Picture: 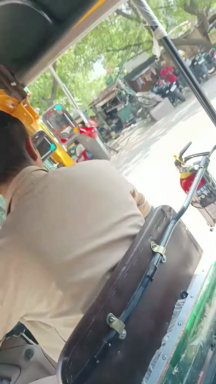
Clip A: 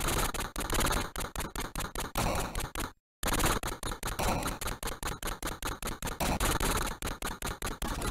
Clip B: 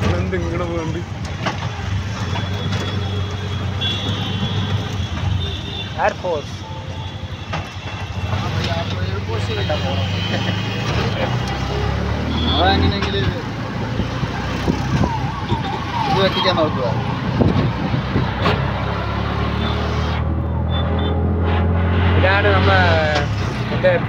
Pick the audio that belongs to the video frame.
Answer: B